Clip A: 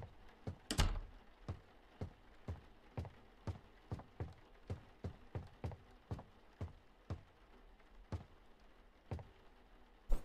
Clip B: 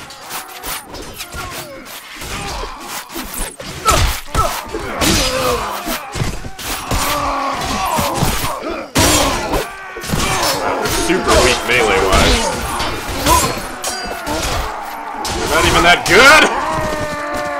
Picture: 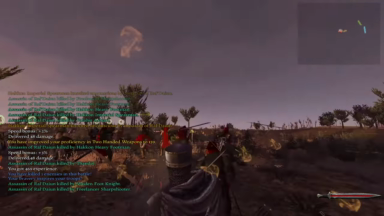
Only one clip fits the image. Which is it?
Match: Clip B